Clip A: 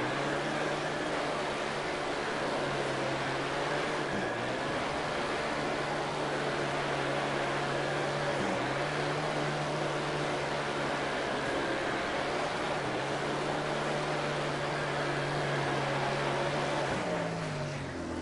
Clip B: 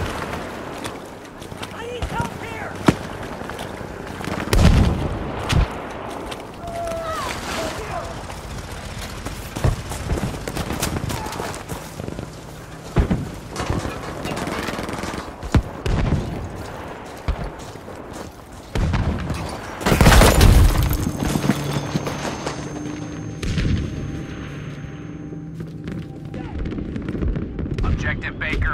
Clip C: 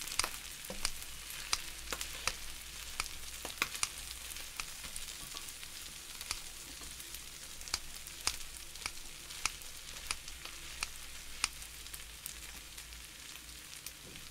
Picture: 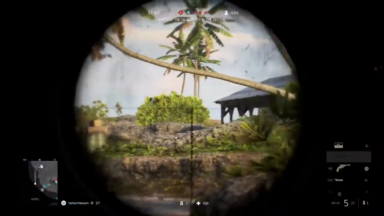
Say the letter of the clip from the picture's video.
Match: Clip B